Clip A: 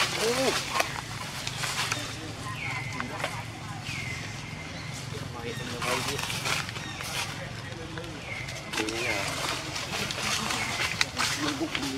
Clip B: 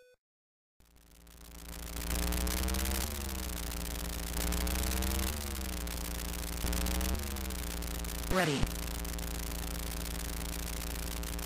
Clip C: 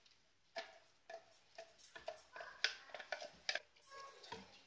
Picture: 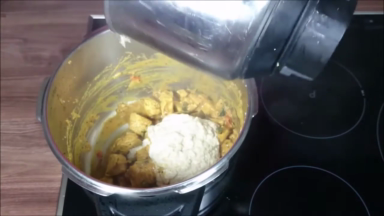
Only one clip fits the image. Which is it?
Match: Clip C